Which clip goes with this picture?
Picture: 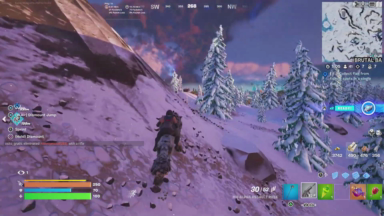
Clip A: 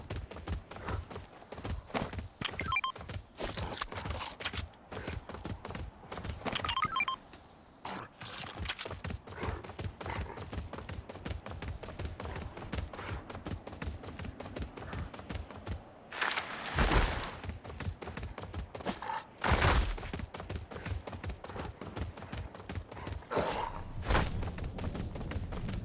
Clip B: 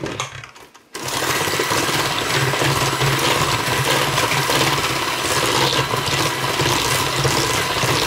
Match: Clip A